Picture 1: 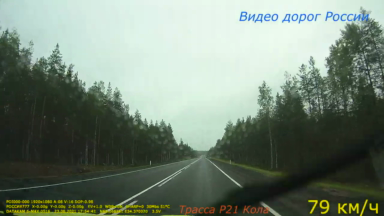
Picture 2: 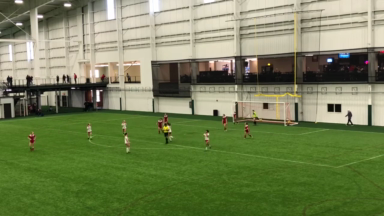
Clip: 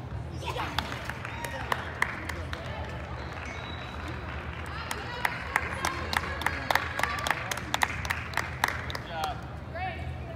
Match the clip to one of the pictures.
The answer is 2